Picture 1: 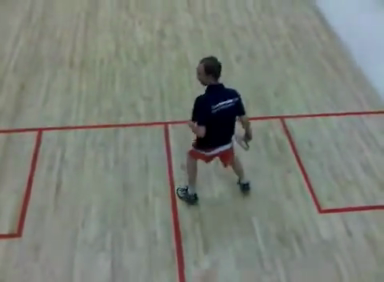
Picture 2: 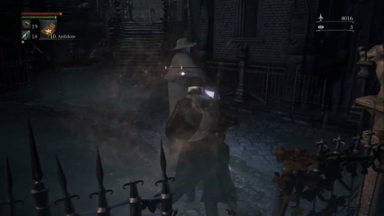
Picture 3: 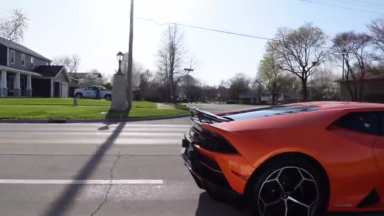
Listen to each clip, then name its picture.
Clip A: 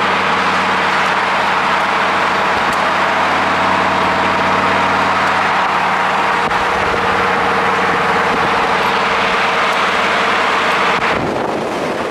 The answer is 3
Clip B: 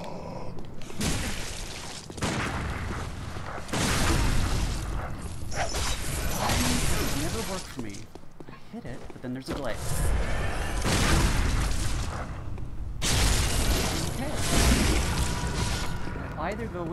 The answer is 2